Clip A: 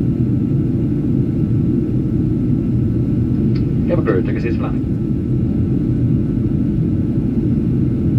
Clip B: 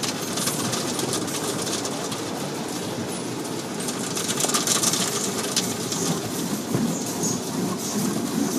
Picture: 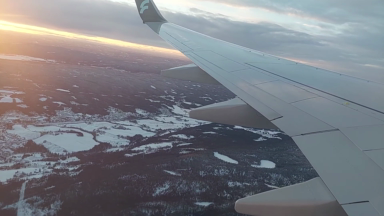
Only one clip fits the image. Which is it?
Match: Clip A